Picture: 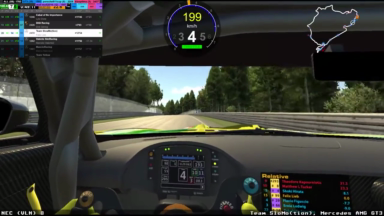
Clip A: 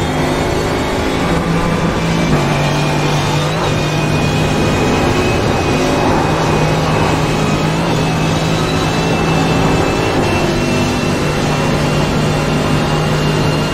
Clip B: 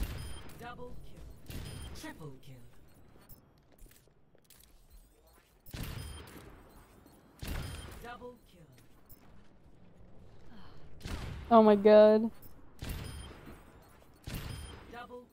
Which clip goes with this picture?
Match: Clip A